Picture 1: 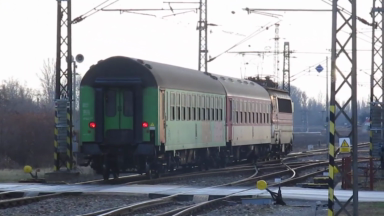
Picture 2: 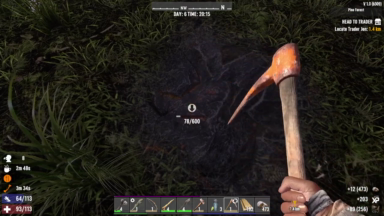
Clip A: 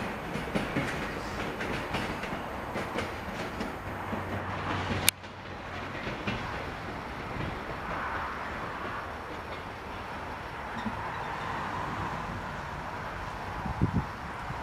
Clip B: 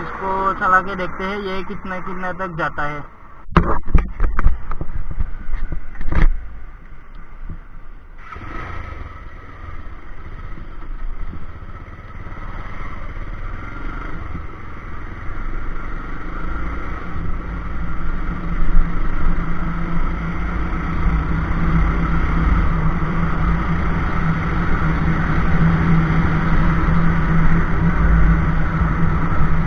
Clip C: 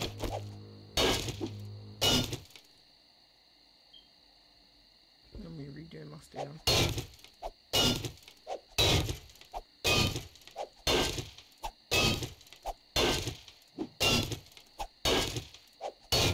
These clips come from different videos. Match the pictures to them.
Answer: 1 A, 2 C